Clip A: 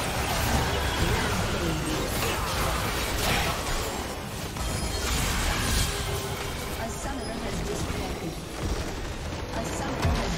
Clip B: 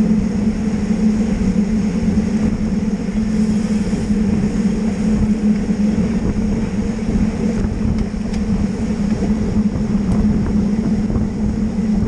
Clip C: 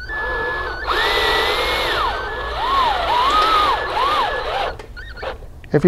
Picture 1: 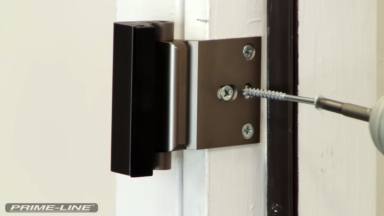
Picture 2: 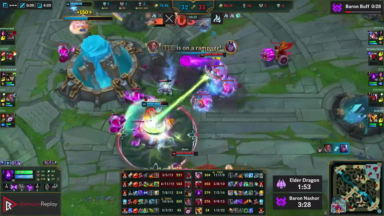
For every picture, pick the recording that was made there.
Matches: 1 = C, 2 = A